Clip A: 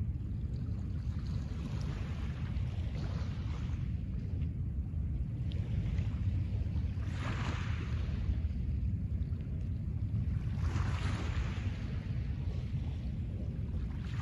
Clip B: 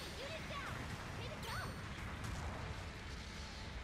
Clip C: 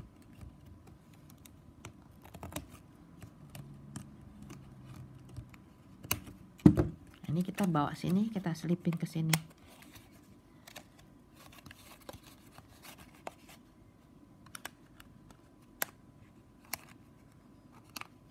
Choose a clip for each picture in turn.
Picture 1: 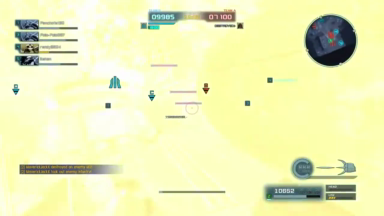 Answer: B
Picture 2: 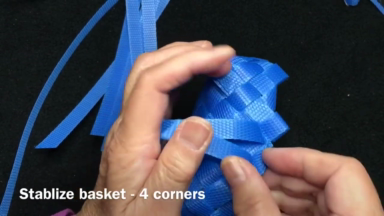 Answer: C